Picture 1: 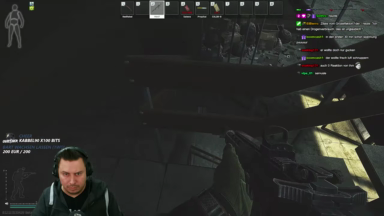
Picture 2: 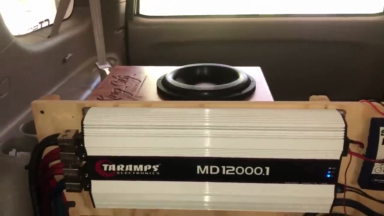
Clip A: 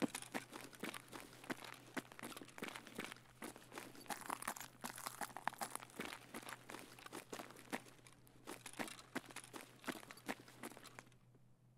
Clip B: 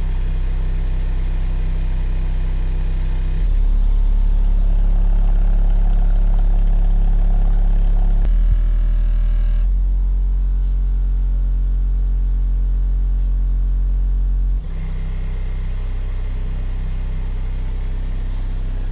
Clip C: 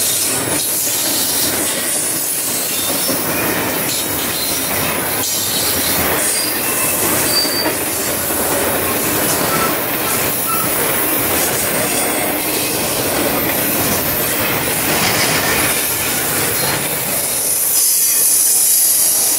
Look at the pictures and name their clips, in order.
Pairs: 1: A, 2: B